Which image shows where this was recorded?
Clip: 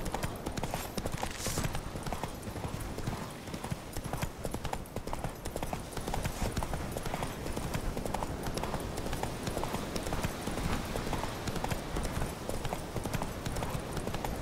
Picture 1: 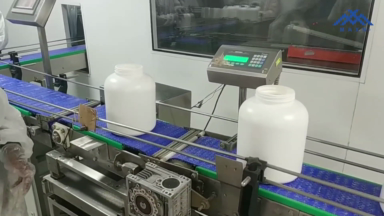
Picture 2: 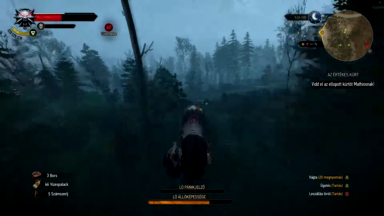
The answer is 2